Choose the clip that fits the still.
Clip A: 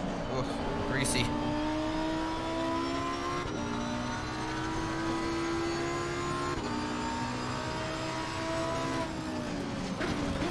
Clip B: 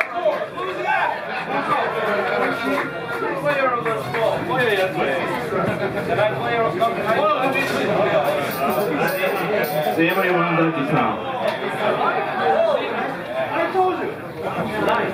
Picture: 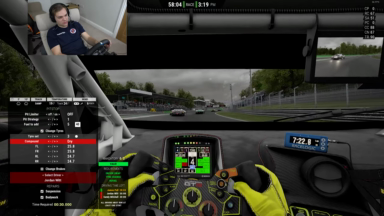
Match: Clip A